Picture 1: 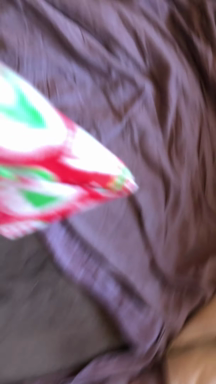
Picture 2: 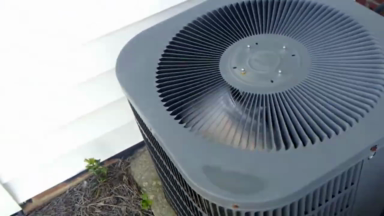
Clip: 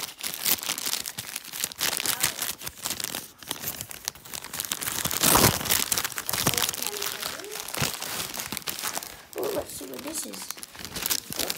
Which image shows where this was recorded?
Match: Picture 1